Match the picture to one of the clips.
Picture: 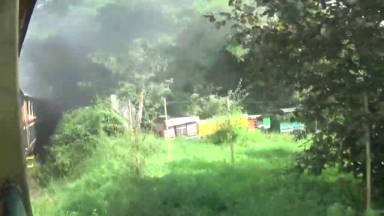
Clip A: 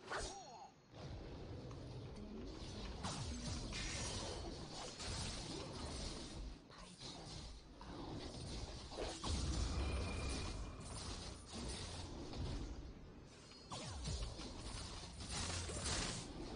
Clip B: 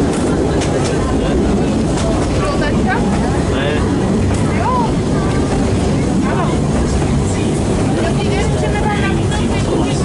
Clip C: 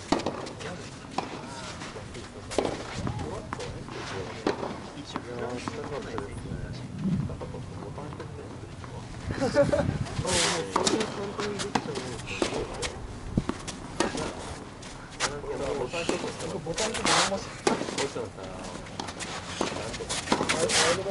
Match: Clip B